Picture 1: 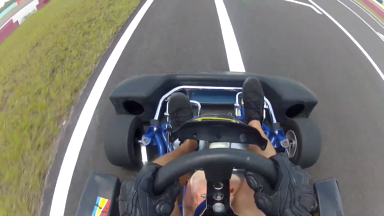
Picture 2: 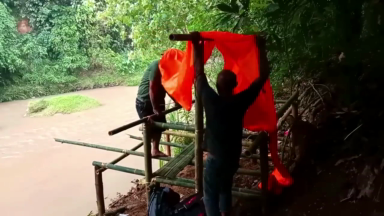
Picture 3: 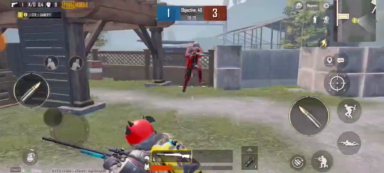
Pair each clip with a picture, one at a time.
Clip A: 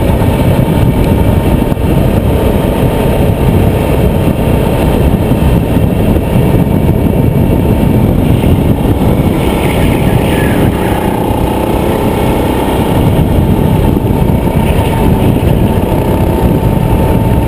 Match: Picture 1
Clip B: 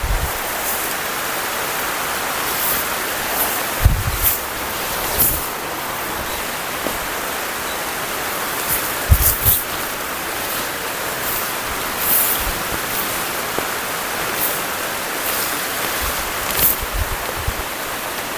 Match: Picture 2